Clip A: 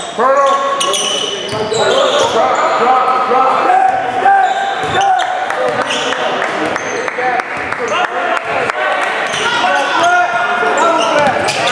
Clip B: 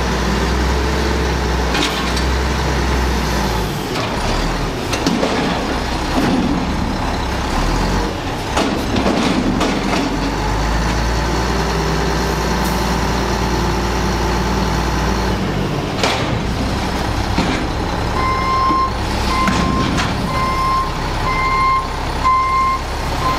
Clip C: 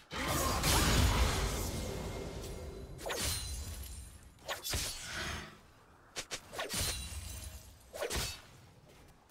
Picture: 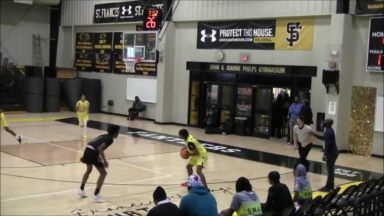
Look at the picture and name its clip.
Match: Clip A